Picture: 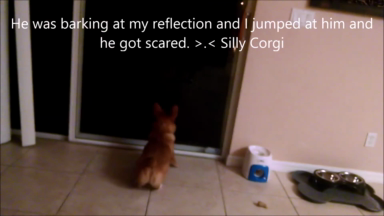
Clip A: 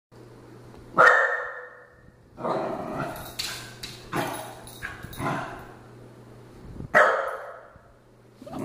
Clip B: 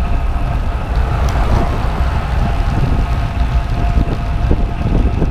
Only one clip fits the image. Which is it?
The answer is A